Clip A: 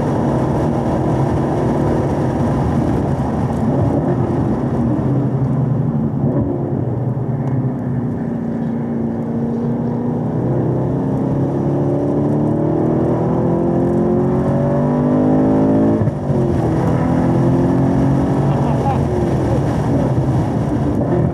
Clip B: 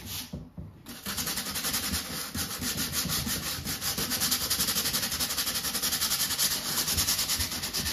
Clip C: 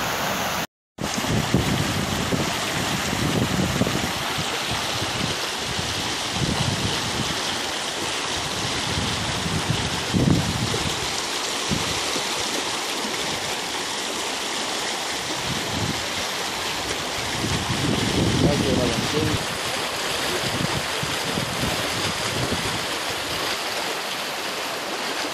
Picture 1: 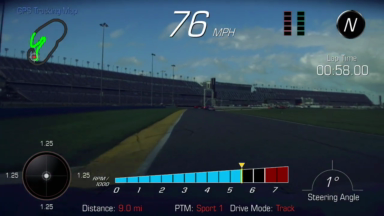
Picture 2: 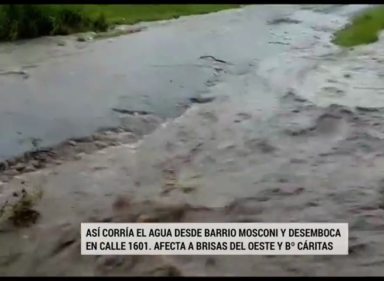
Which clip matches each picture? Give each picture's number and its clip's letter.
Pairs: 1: A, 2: C